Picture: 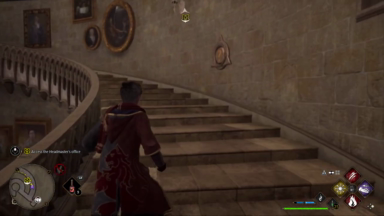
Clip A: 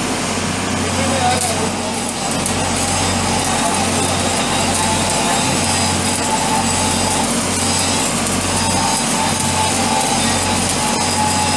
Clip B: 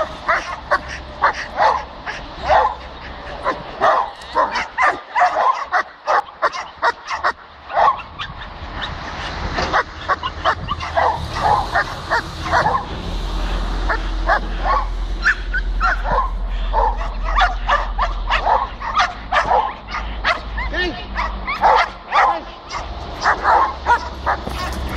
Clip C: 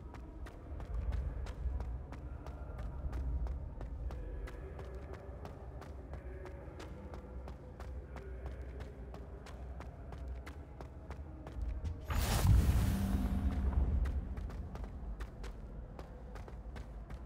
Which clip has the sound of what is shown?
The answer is C